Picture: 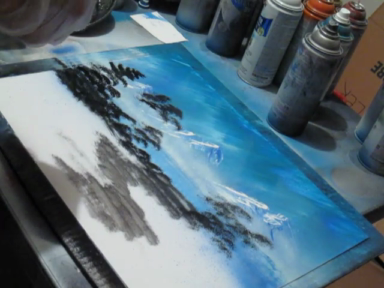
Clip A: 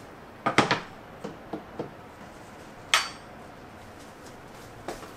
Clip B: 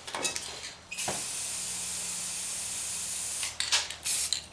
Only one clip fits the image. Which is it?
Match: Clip B